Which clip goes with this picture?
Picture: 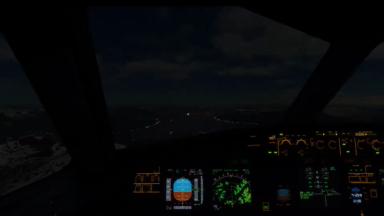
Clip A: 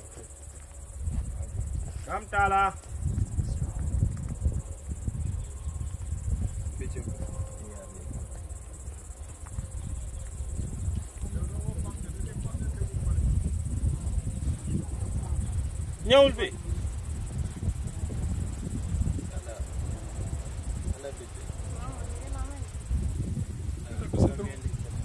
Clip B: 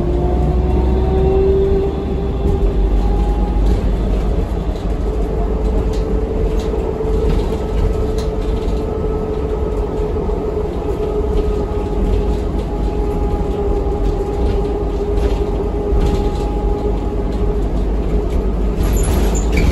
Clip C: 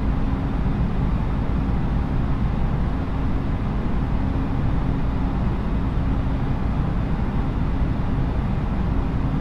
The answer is C